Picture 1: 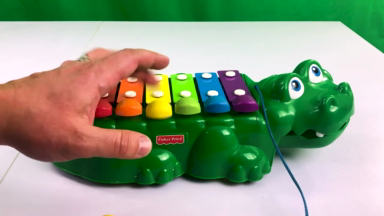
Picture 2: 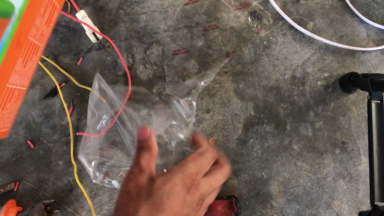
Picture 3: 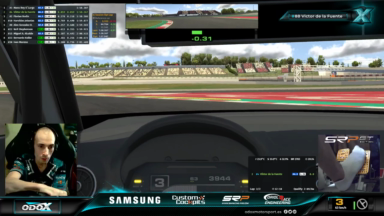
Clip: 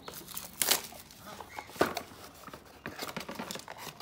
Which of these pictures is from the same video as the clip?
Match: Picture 2